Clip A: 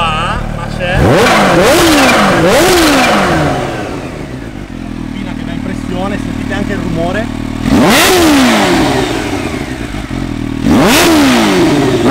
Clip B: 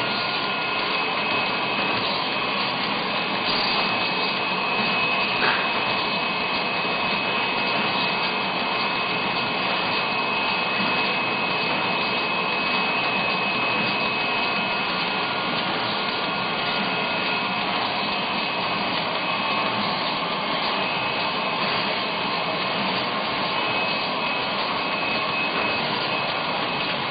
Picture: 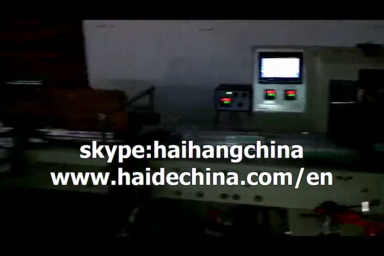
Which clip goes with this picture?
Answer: B